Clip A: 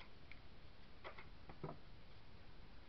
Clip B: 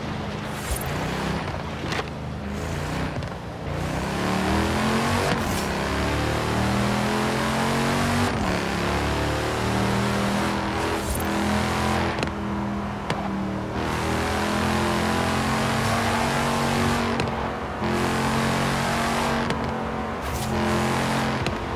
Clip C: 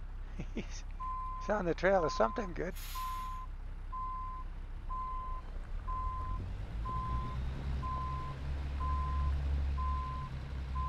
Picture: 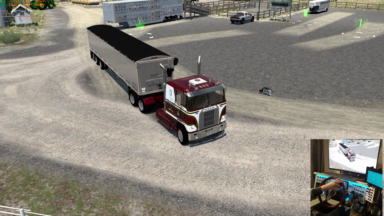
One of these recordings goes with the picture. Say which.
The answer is C